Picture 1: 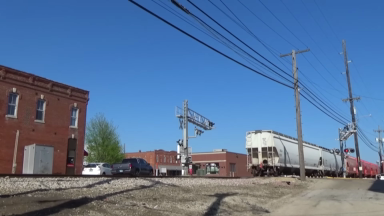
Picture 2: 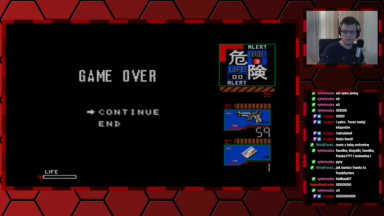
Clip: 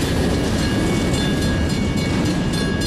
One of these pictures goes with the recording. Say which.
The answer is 1